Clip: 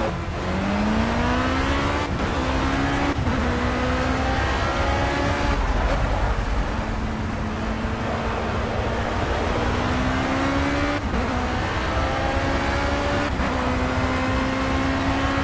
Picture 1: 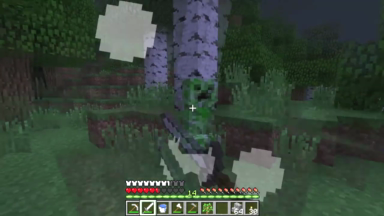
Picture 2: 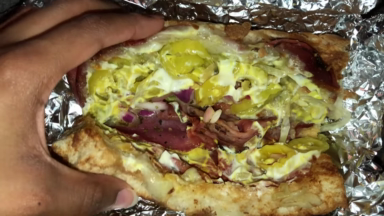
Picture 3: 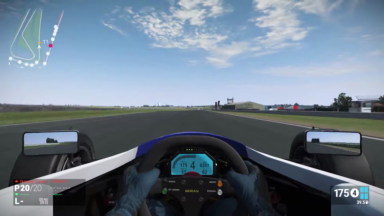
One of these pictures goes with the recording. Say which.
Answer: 3